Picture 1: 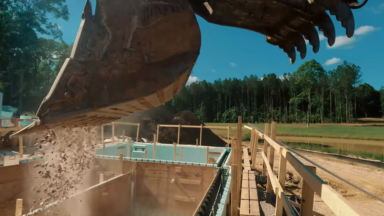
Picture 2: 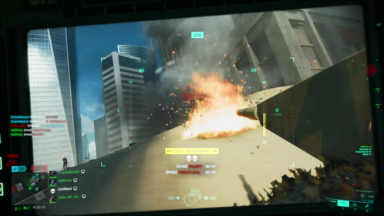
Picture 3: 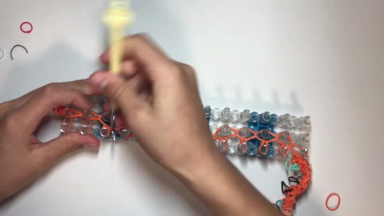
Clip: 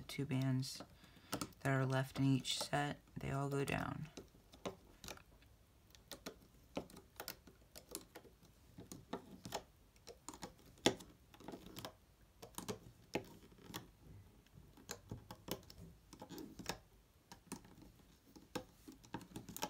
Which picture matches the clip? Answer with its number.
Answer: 3